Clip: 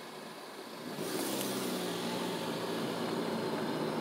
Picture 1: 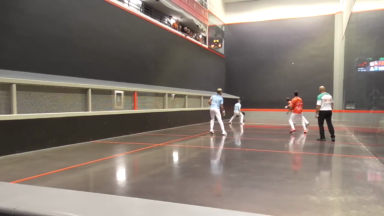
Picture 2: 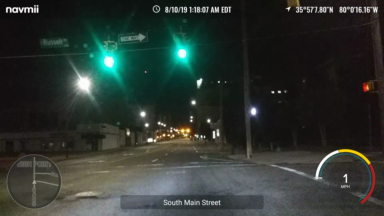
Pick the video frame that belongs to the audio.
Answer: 2